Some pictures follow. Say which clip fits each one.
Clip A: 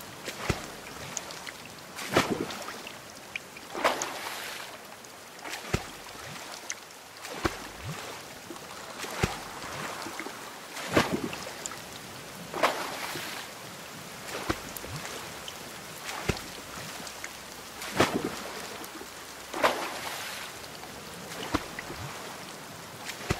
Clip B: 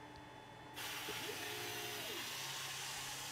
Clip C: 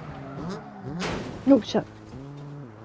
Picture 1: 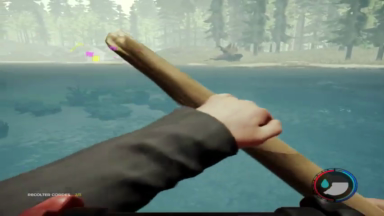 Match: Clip A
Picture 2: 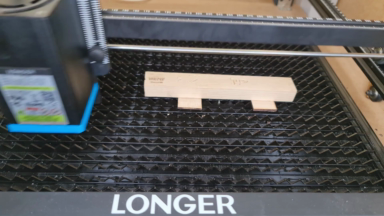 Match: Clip B